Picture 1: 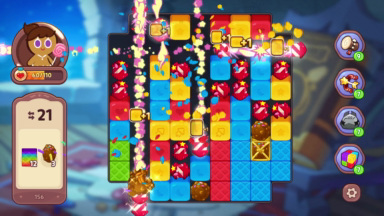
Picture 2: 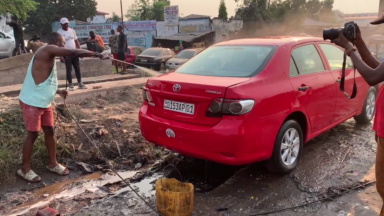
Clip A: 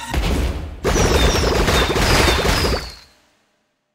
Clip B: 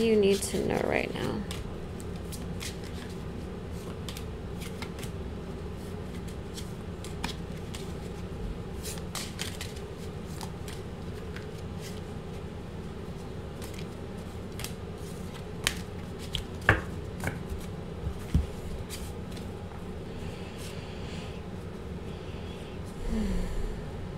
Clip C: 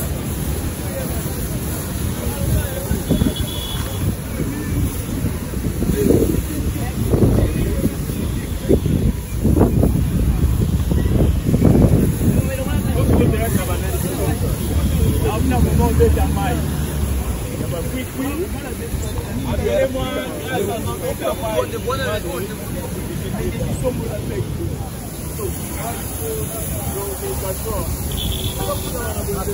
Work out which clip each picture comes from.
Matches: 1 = A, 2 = C